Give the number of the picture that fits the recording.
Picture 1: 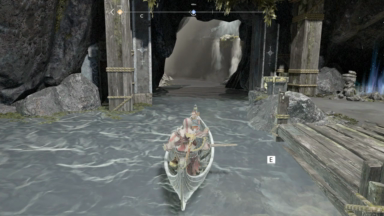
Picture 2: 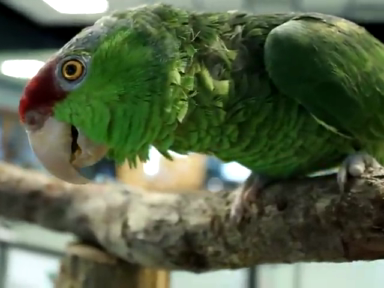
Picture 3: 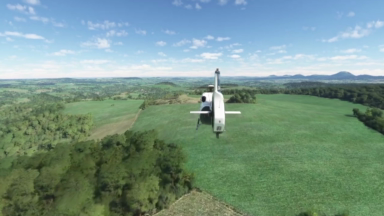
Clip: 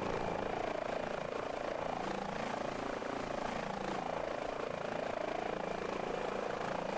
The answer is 3